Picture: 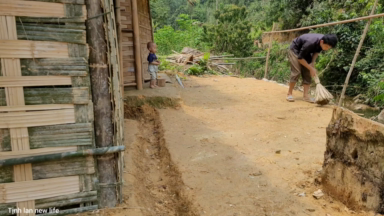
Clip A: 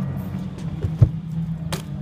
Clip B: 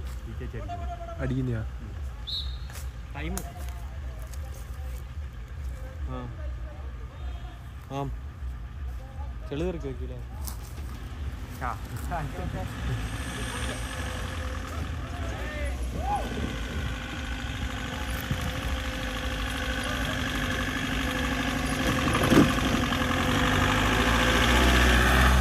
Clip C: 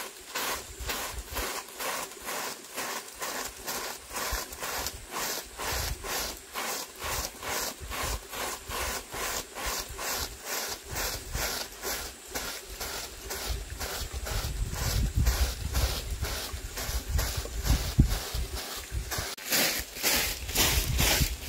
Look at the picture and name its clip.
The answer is C